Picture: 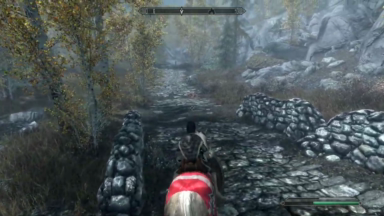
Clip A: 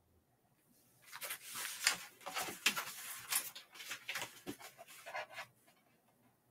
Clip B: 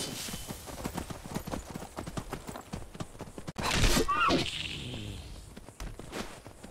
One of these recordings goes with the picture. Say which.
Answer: B